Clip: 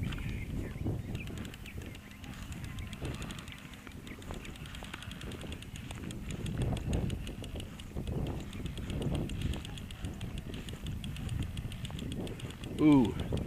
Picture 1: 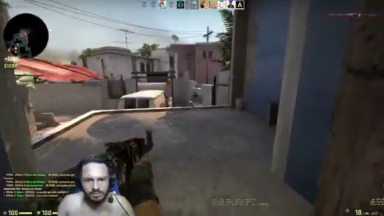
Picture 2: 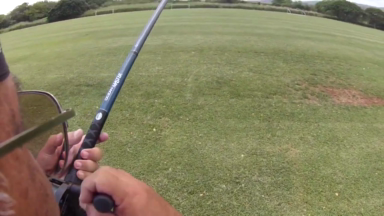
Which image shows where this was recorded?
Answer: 2